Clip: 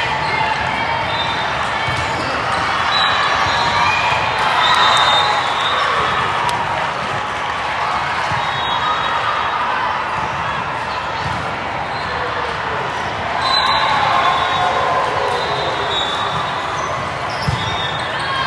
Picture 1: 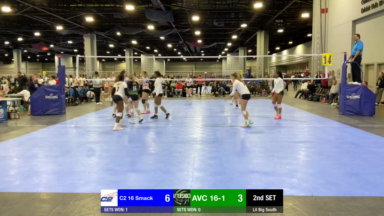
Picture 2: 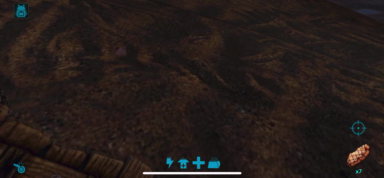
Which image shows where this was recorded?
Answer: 1